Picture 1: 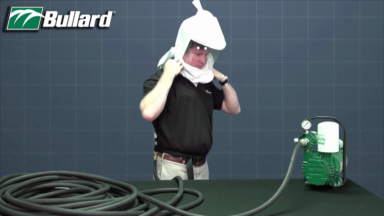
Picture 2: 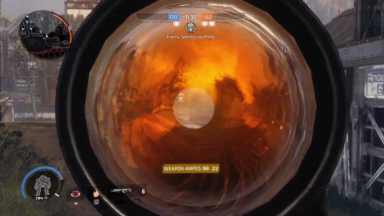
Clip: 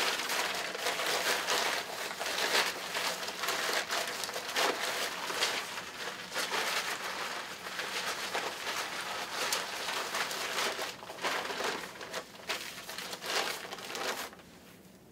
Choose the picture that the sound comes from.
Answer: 1